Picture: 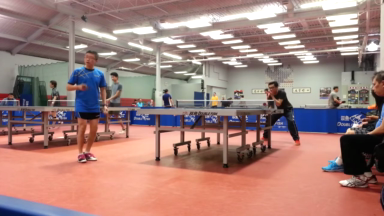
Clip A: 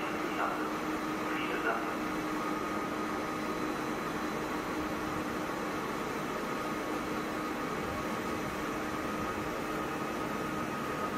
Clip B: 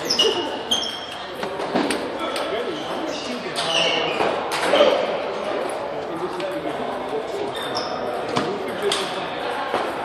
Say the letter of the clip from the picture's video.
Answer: B